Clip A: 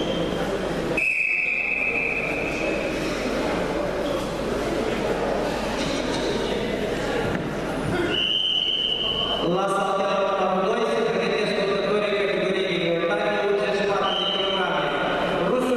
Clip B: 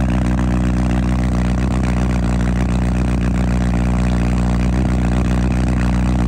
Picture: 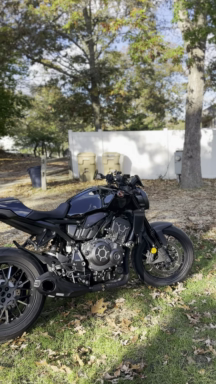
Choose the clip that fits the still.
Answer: B